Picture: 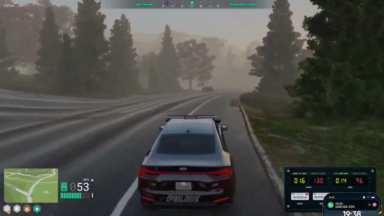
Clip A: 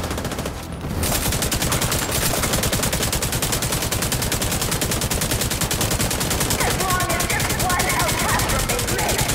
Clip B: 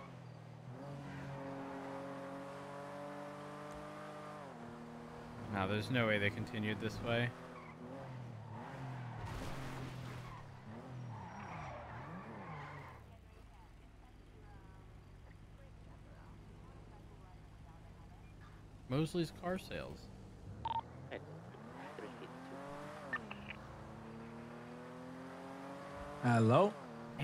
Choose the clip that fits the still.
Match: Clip B